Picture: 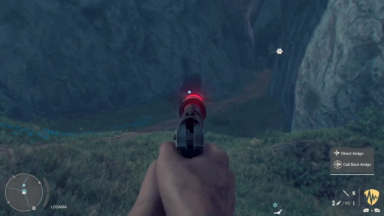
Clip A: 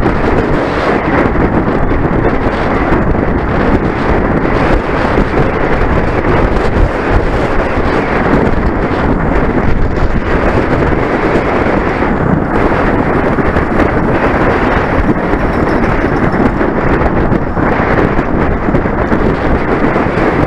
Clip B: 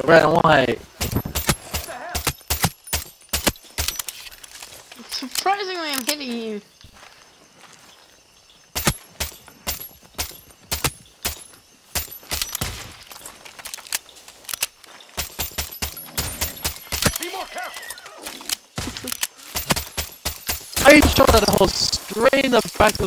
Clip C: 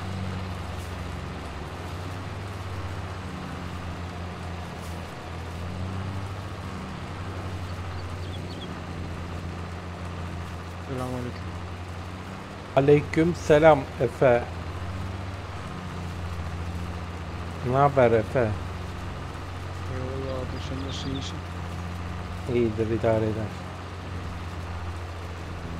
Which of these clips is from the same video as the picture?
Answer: B